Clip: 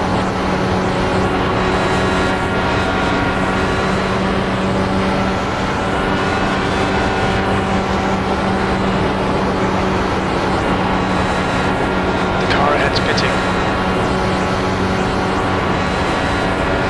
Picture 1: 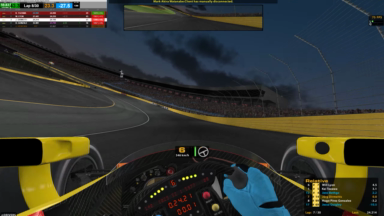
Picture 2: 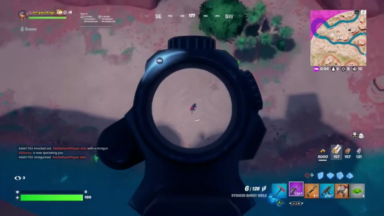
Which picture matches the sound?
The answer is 1